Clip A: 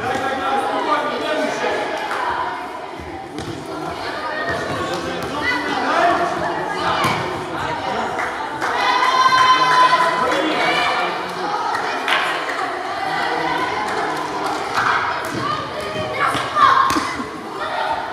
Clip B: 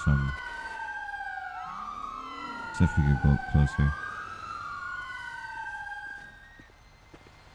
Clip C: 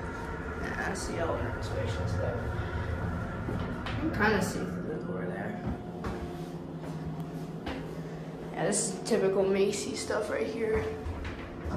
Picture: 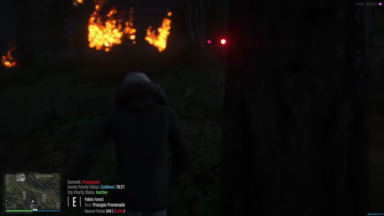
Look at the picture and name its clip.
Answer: B